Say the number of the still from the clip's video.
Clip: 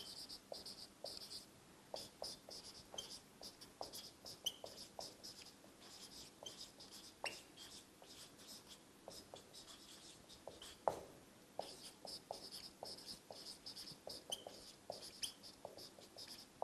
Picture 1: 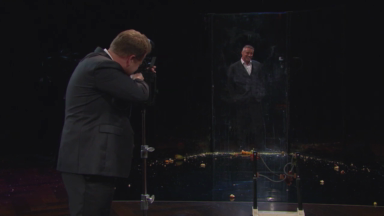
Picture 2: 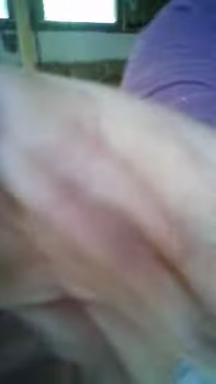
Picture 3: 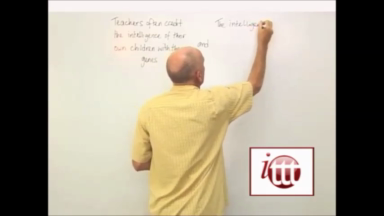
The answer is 3